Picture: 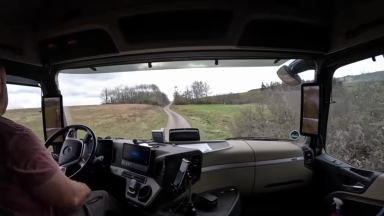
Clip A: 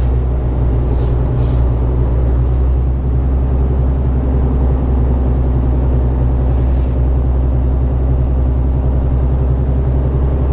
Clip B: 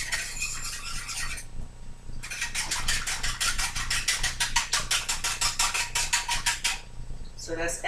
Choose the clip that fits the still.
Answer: A